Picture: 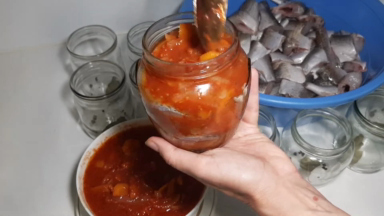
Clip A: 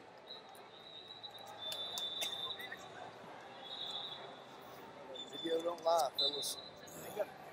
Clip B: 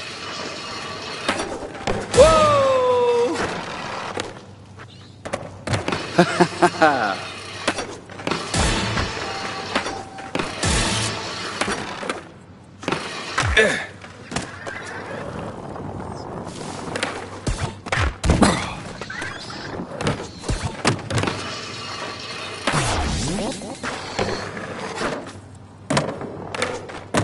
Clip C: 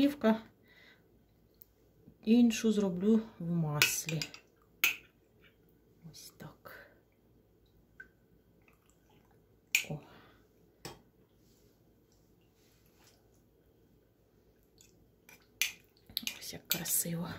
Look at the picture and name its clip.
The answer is C